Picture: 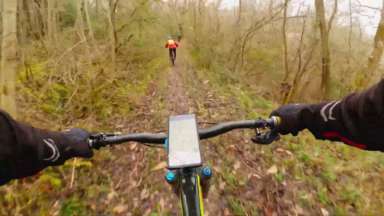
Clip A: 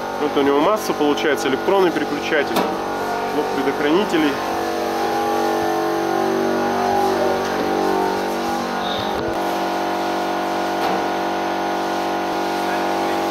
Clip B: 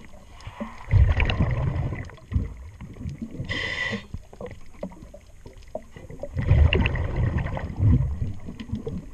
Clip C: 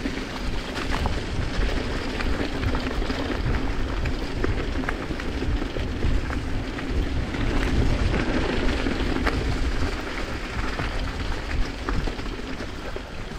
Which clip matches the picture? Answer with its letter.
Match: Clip C